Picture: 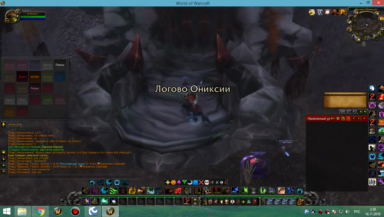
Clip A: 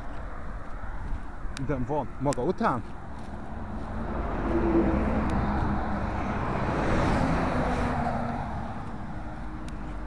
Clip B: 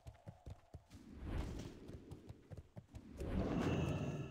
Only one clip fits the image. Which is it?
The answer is B